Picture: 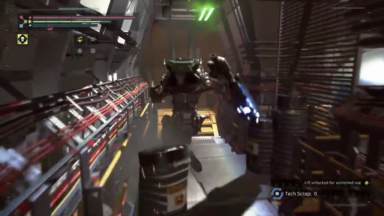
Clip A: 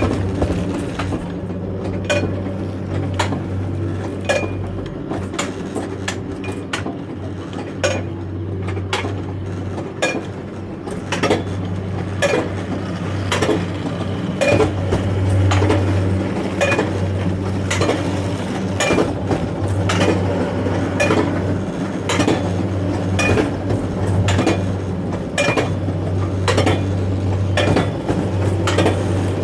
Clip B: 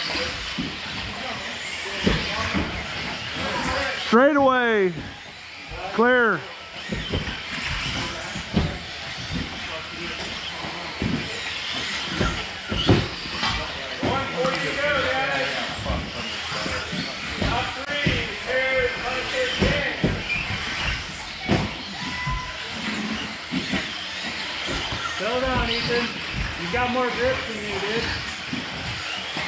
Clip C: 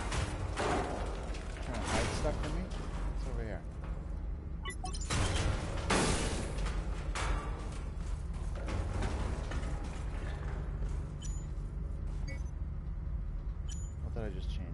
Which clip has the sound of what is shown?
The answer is C